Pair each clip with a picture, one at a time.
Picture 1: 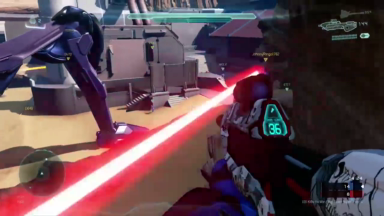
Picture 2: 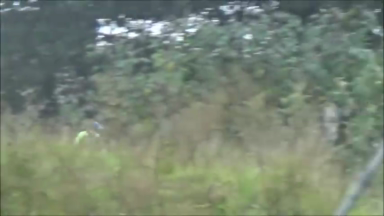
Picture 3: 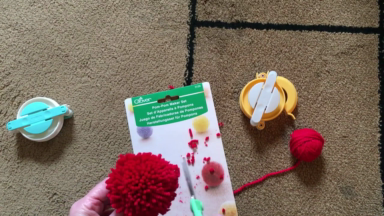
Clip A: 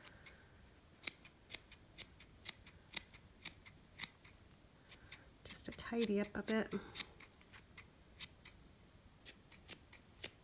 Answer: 3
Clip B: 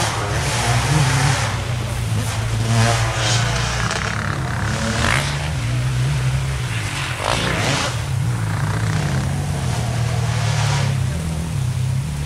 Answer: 2